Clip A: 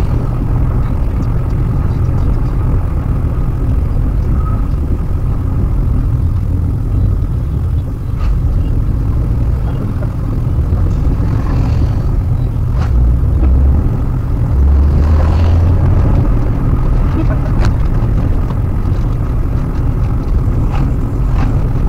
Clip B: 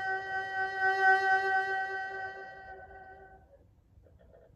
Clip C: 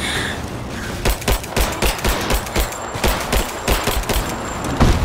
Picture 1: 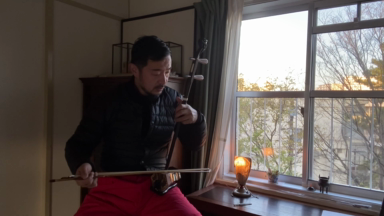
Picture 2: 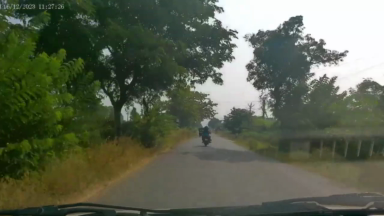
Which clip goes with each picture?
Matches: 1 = B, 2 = A